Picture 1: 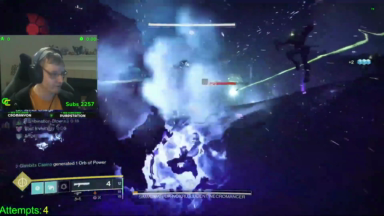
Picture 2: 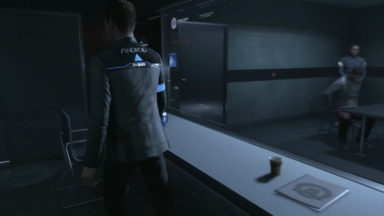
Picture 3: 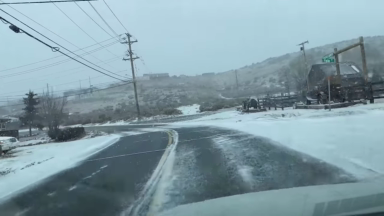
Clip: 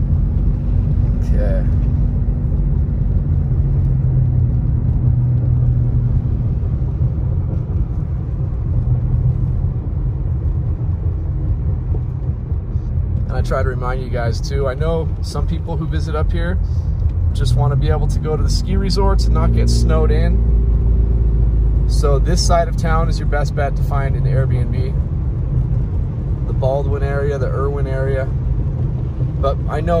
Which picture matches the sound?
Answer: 3